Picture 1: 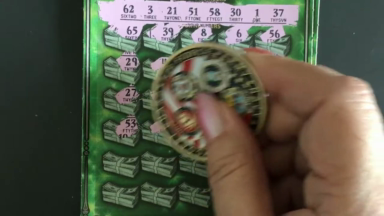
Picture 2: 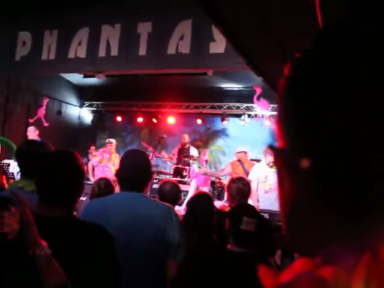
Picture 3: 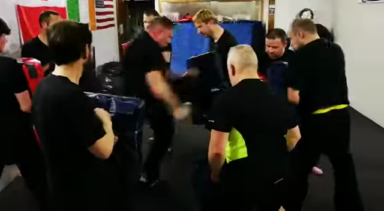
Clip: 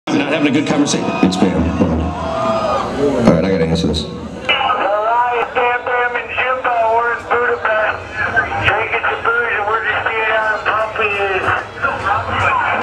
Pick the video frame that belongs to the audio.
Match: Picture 2